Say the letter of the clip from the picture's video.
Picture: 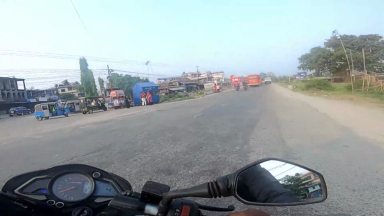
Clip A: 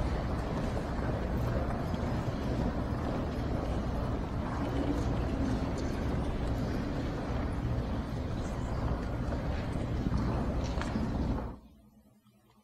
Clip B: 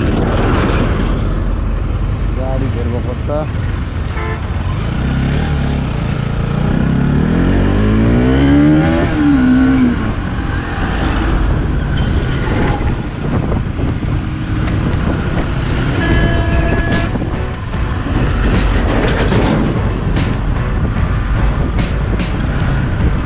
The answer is B